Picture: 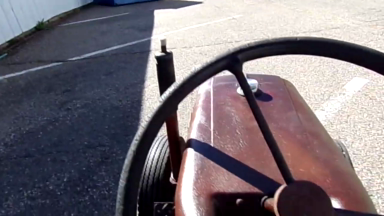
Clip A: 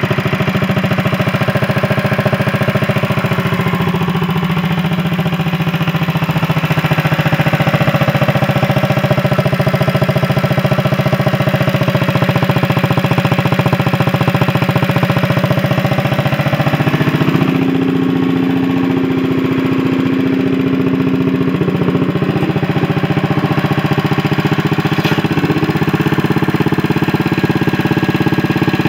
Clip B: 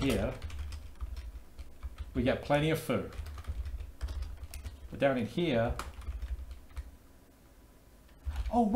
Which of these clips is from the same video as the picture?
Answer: A